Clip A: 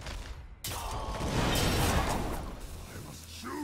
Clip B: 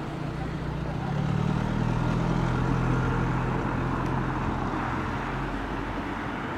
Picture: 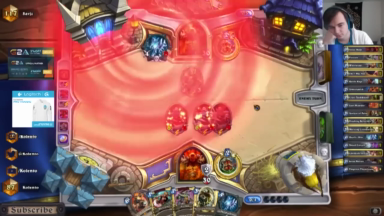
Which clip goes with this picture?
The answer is A